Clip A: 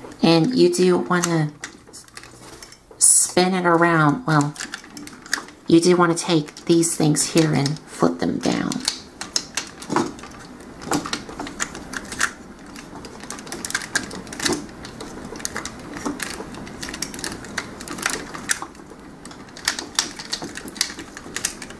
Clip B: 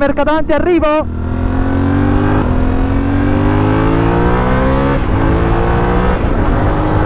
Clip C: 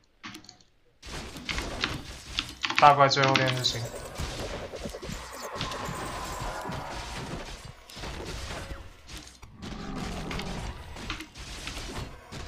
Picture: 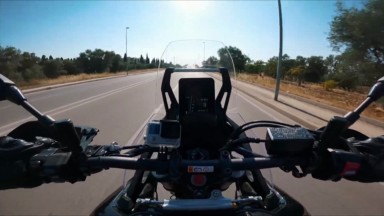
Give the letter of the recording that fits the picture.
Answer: B